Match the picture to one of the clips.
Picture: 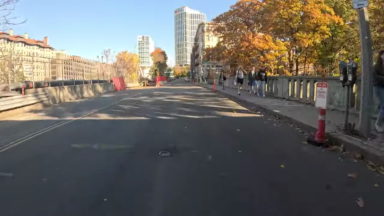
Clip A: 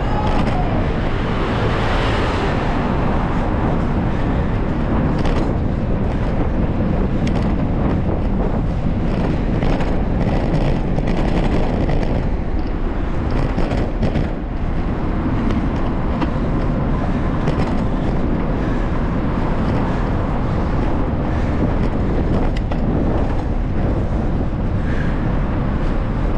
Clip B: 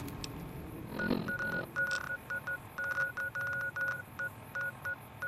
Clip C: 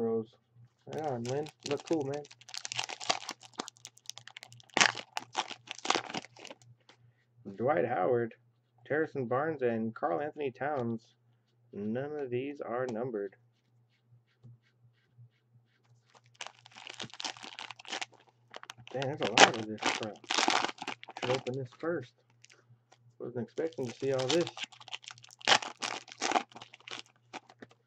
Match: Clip A